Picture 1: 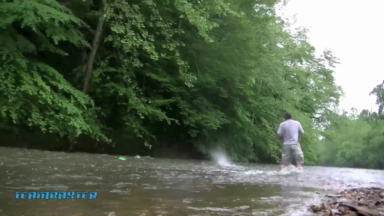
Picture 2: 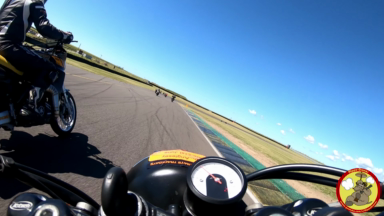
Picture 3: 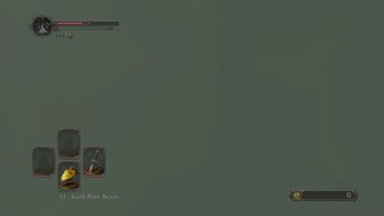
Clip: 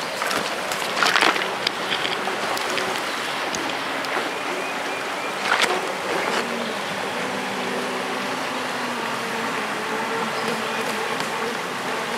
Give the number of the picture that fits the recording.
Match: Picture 1